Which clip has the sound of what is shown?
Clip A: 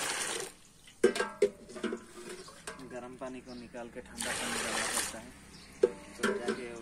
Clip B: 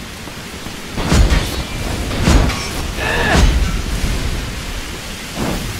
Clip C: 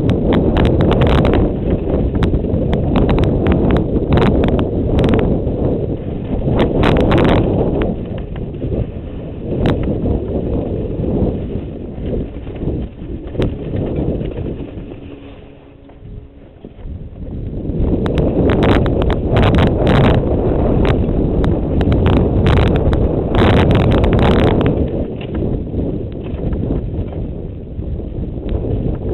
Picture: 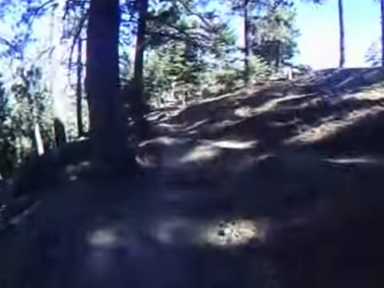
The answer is C